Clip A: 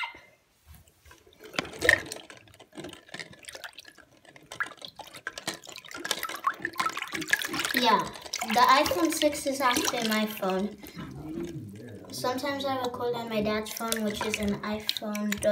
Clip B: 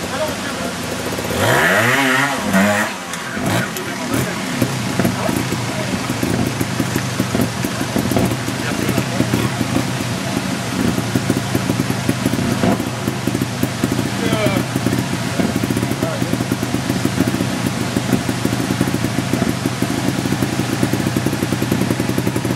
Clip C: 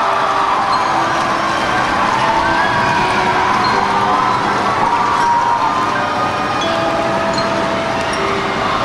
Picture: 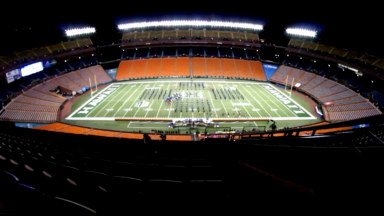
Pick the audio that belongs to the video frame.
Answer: C